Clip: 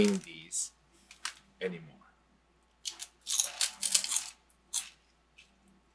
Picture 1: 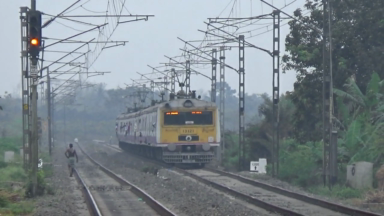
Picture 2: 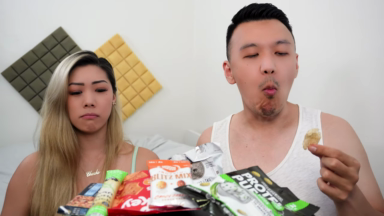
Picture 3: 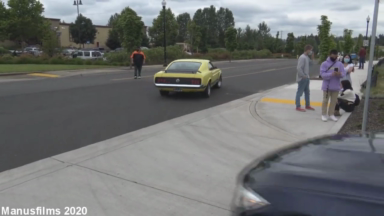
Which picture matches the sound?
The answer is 2